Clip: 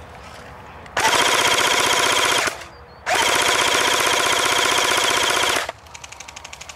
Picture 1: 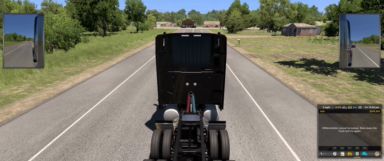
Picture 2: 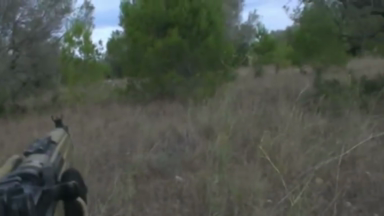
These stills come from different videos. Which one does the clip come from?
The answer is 2